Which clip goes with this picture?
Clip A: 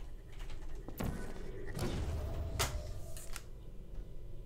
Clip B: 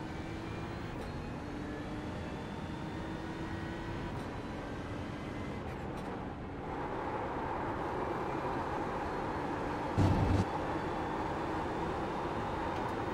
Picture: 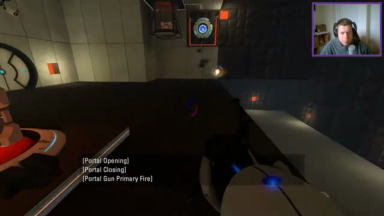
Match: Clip A